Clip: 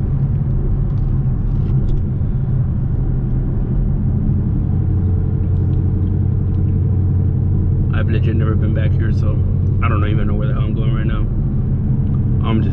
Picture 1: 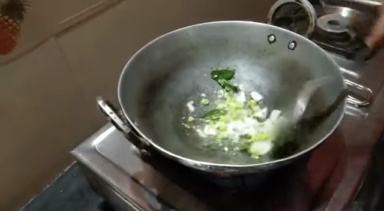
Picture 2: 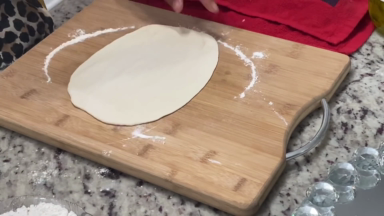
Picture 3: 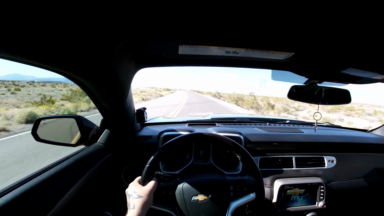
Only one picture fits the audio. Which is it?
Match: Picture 3